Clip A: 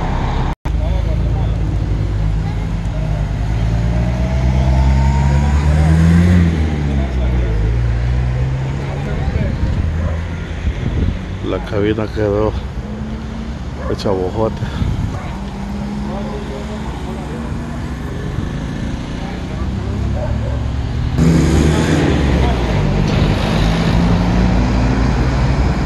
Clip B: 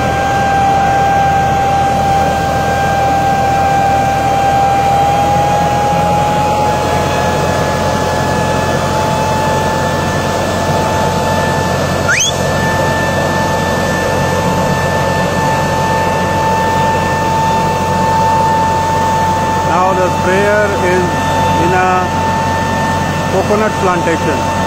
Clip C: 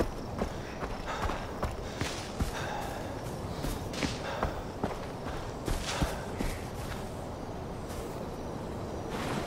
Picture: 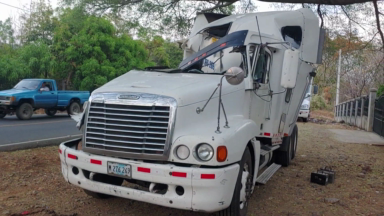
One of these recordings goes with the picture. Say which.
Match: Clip A